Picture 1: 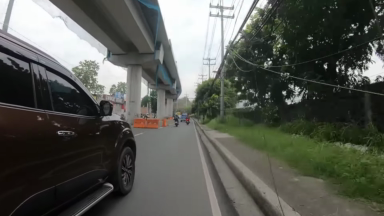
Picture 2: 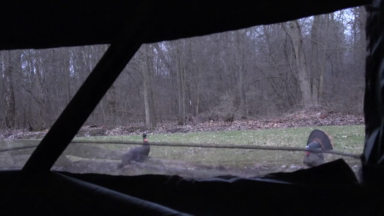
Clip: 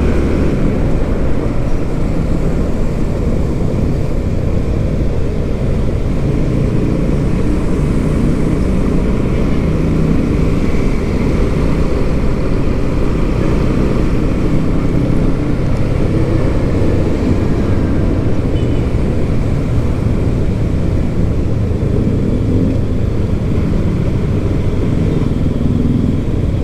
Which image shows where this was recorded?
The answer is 1